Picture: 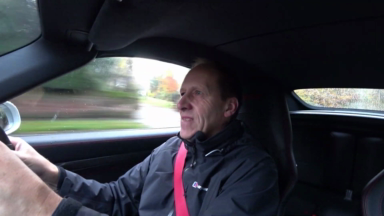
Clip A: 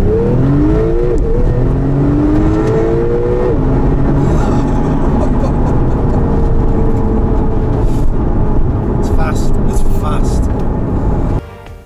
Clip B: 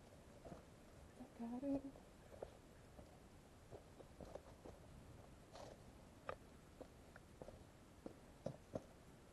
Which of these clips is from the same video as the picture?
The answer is A